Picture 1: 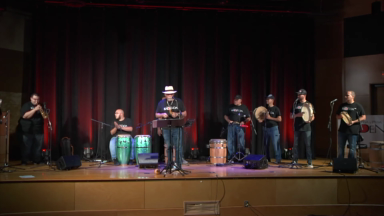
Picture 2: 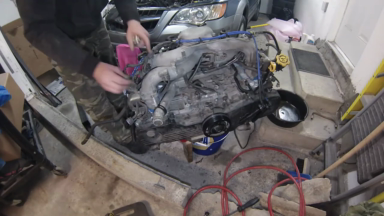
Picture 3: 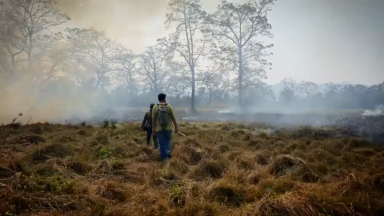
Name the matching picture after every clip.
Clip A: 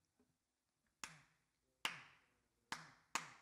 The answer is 1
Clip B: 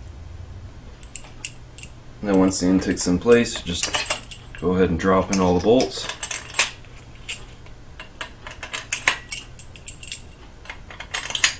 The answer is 2